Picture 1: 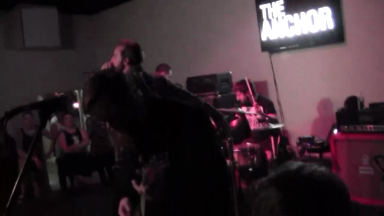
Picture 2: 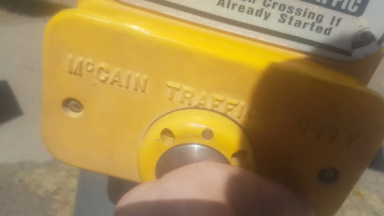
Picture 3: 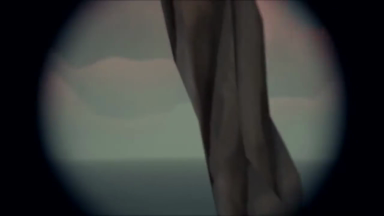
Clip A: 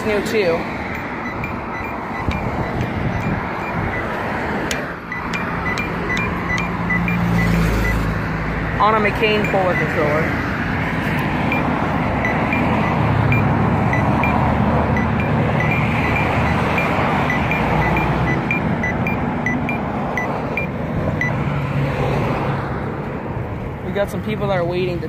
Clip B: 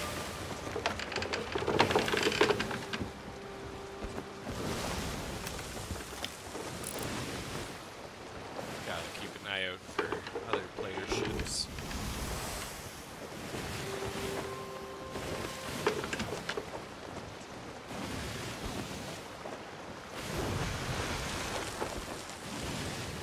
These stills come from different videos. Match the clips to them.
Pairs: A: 2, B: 3